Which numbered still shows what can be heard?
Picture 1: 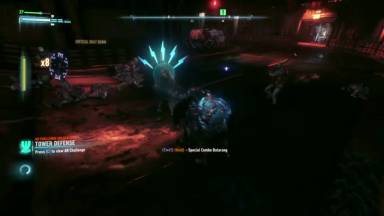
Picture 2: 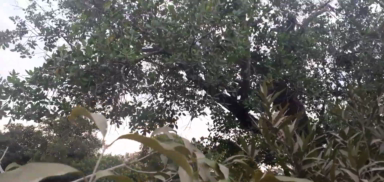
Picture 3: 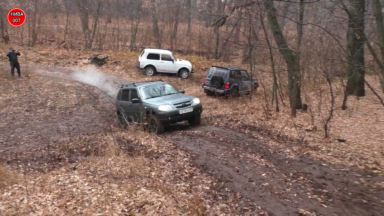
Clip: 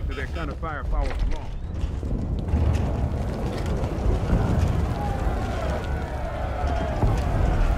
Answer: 1